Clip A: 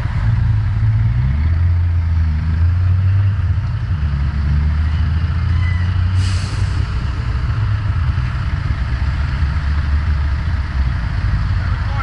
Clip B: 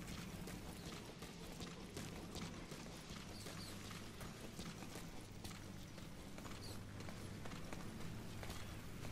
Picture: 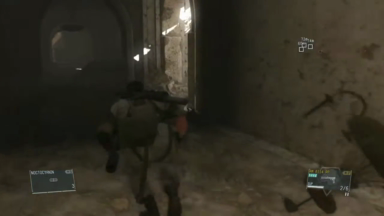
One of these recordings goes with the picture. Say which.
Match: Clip B